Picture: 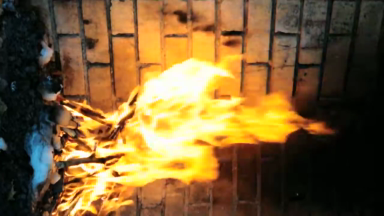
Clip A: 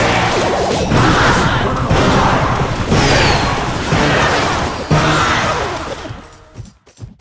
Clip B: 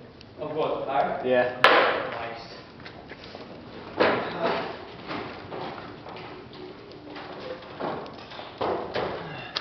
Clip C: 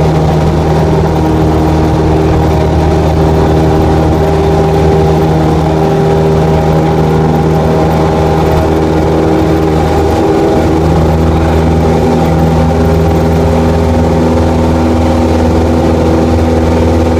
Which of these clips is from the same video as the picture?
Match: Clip B